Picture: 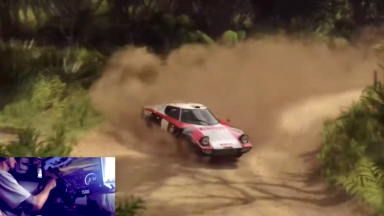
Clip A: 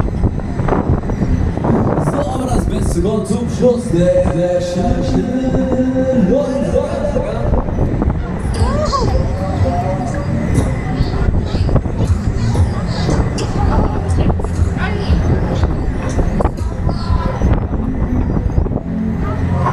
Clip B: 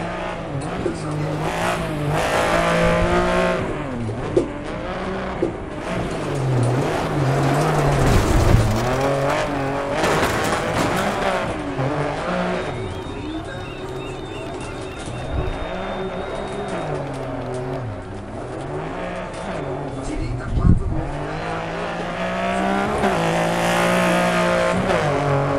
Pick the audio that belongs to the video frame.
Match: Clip B